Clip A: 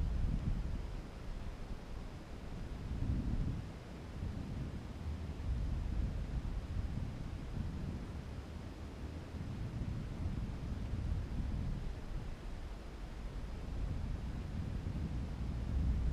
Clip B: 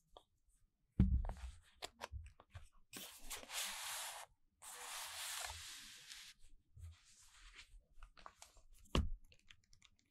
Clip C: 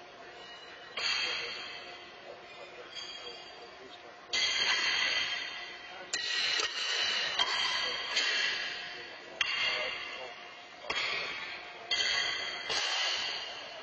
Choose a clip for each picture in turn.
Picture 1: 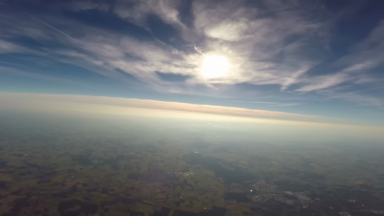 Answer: A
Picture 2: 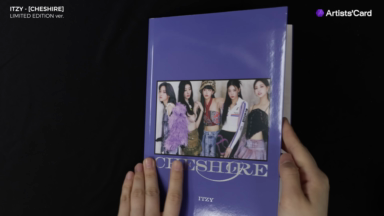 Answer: B